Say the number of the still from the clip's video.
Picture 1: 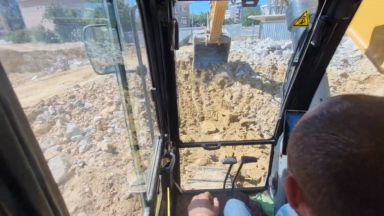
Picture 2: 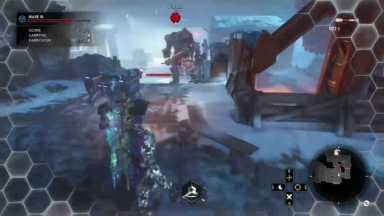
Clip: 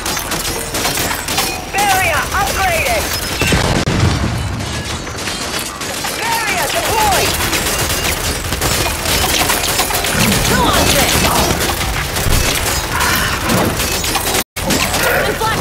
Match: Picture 2